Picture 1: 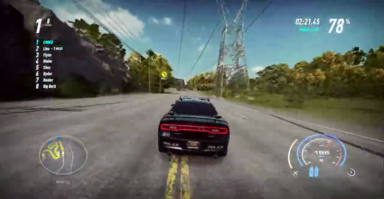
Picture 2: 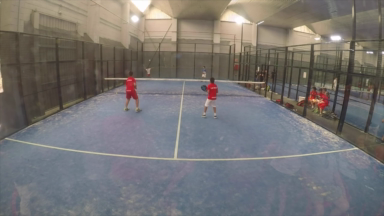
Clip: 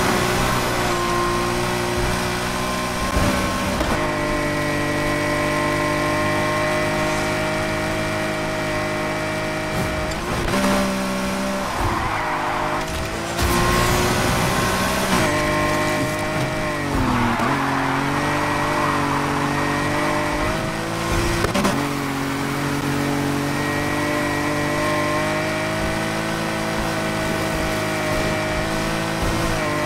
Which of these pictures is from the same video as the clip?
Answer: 1